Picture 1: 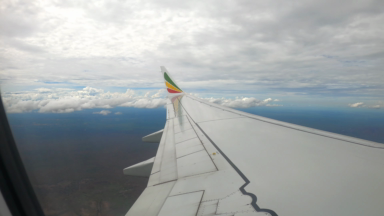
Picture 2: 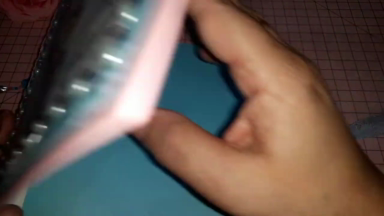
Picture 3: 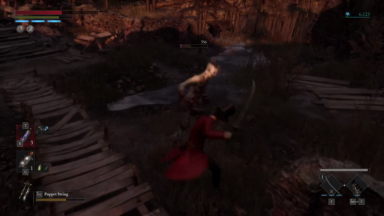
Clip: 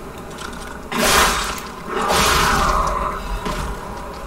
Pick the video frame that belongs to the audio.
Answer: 3